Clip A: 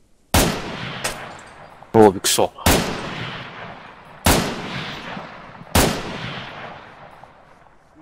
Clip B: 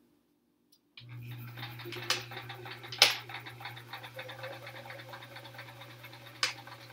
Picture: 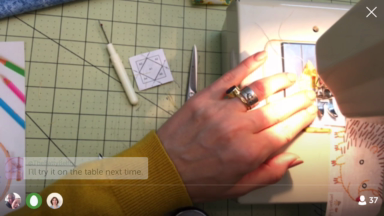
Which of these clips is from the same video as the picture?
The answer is B